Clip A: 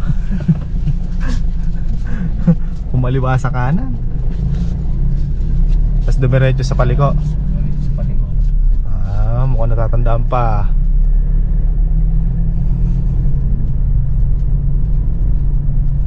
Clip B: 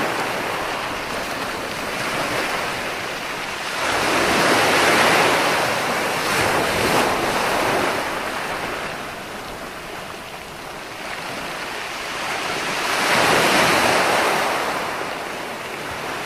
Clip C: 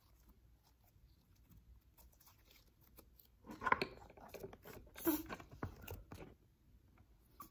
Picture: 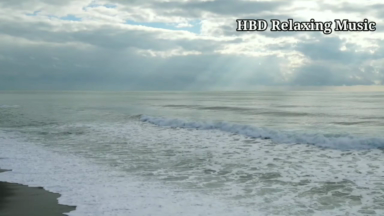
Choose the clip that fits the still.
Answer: B